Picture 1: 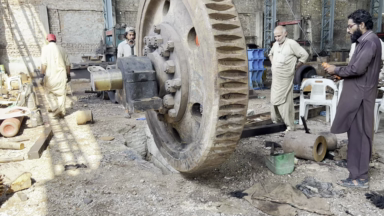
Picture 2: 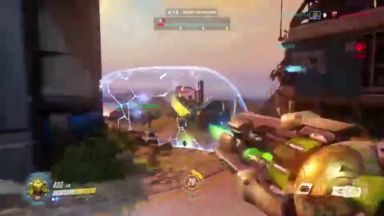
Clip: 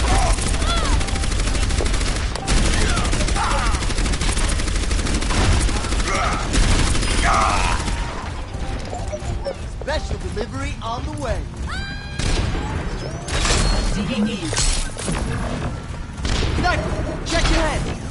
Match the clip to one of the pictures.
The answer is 2